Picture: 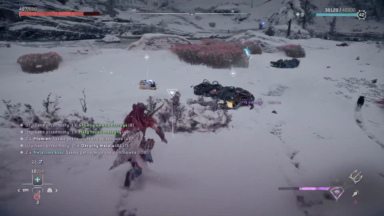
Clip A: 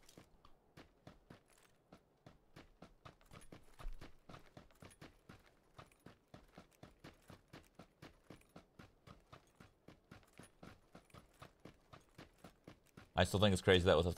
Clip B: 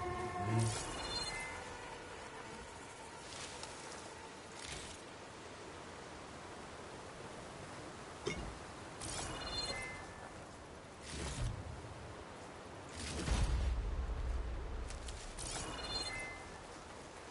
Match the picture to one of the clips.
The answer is B